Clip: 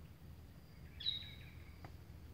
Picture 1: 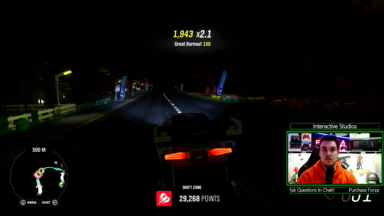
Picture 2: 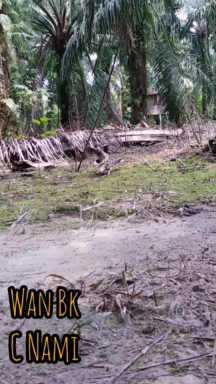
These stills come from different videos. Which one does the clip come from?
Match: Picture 2